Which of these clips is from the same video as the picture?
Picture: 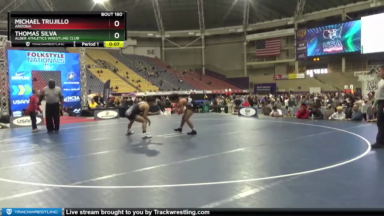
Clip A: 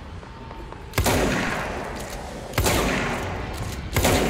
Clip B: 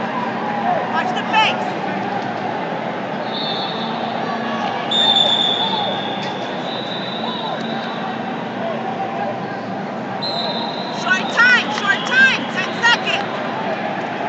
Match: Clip B